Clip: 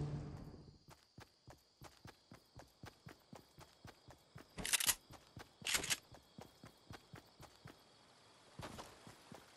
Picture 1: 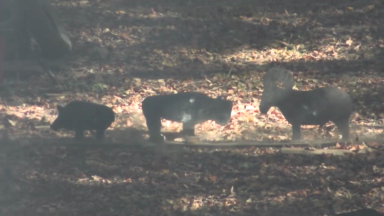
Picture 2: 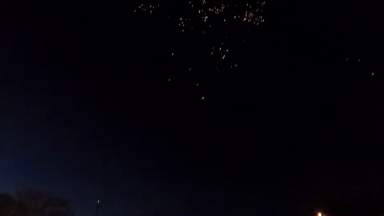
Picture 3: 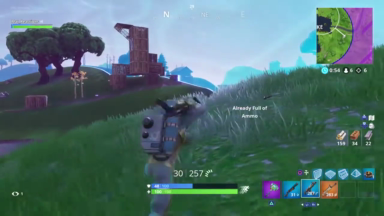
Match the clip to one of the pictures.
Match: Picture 3